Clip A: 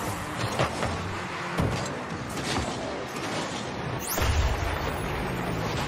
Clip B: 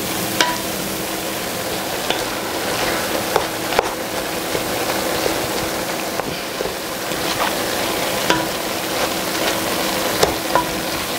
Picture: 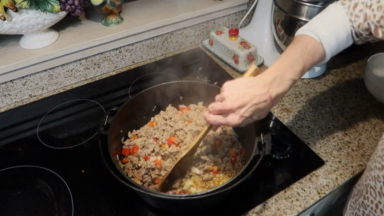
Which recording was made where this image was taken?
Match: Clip B